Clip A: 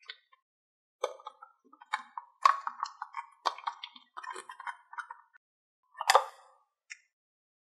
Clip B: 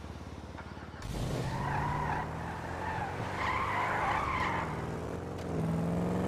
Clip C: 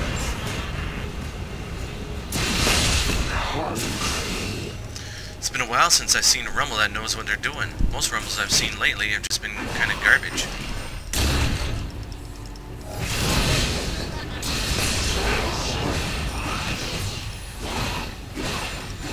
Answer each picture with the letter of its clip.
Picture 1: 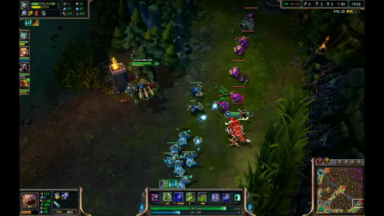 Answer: C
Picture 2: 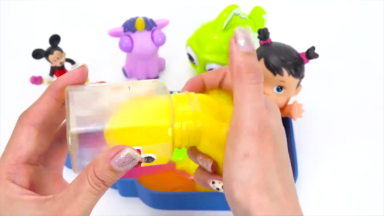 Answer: A